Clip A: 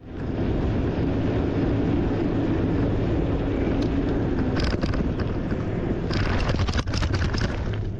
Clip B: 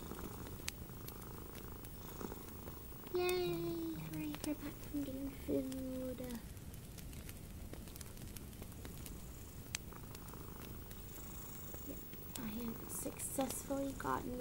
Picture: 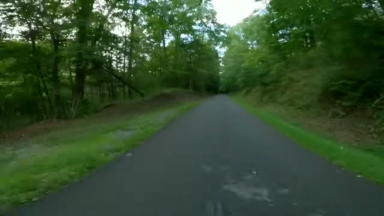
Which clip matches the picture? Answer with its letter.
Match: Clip A